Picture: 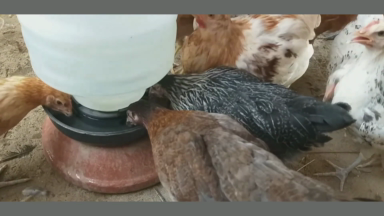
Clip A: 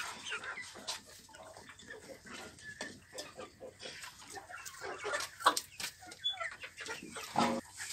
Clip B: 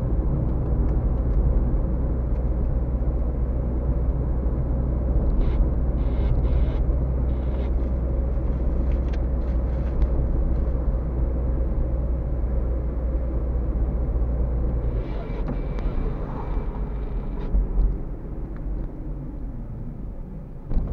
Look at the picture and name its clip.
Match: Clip A